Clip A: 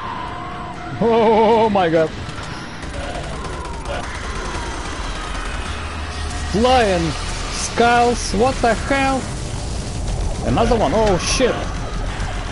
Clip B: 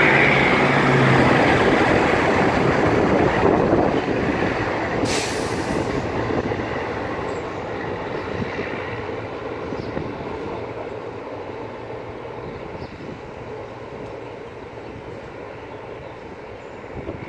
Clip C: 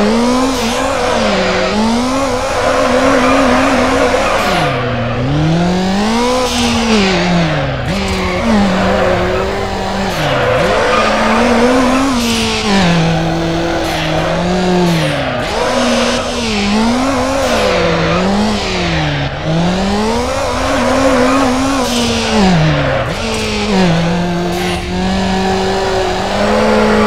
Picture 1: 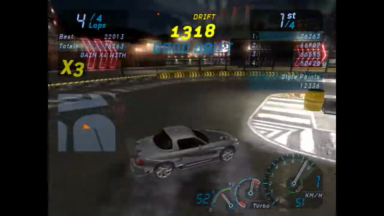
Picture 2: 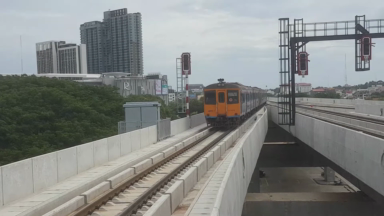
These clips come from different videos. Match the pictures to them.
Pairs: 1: C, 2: B